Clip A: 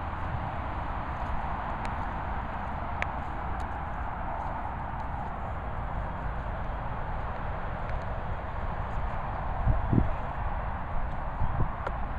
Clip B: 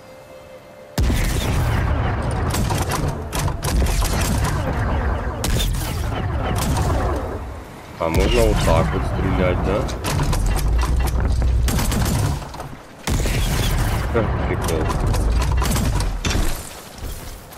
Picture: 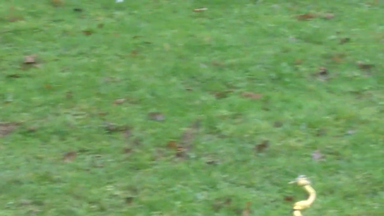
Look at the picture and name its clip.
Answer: A